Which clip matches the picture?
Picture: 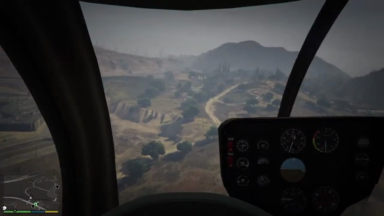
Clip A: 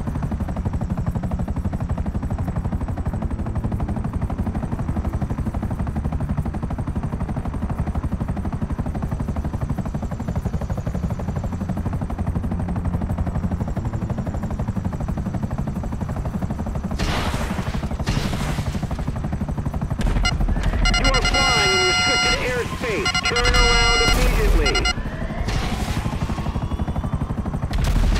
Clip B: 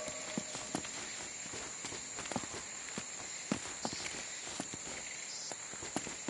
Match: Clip A